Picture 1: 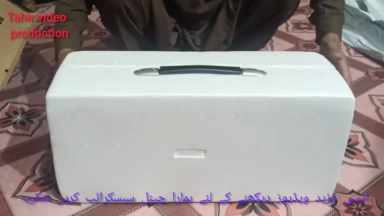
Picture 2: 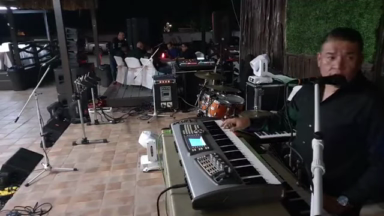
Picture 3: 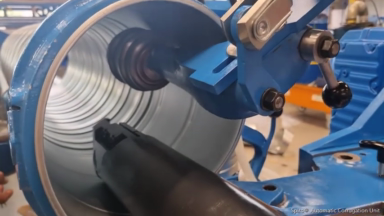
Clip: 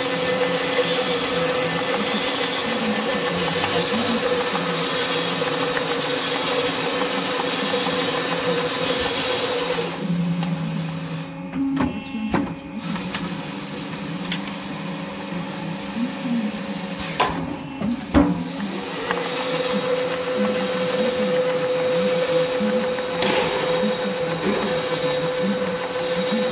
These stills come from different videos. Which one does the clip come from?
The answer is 3